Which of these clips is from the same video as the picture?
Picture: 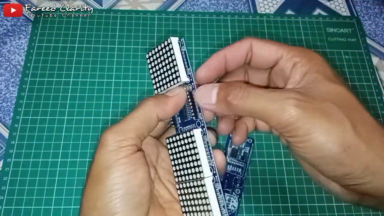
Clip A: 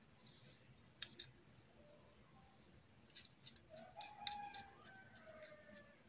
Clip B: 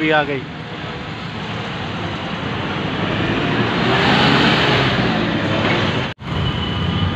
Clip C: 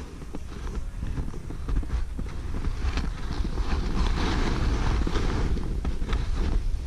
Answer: A